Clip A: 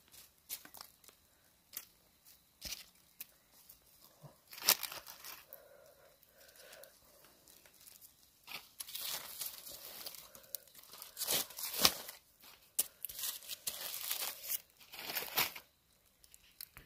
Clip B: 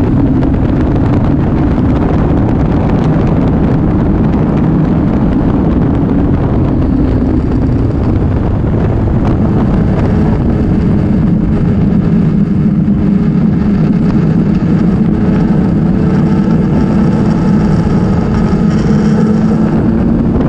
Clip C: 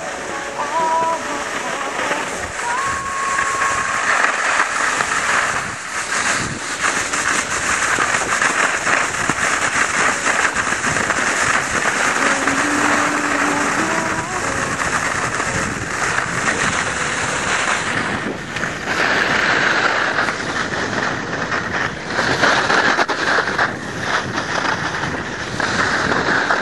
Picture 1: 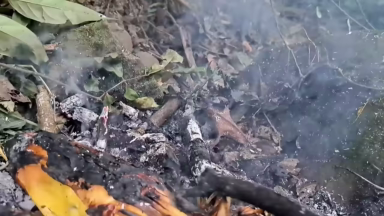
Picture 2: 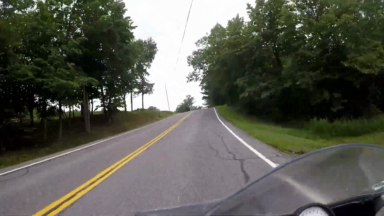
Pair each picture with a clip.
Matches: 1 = A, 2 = B